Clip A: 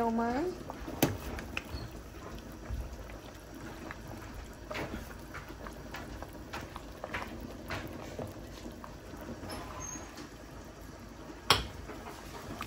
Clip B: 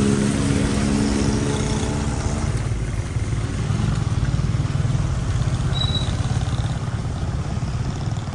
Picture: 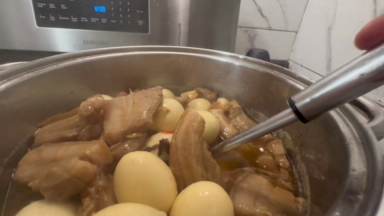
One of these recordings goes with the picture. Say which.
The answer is A